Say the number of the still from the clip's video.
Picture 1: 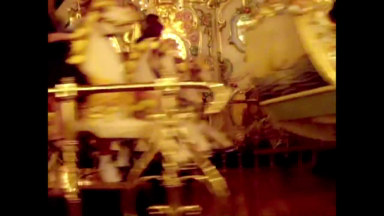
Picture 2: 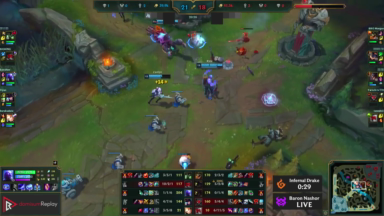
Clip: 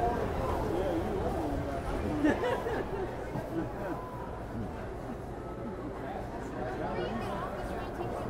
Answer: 1